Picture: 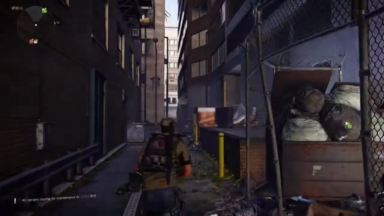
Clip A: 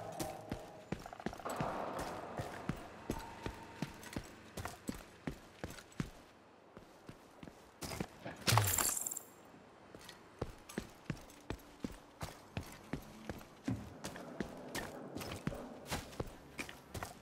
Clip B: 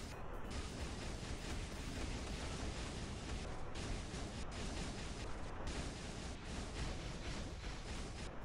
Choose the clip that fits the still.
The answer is A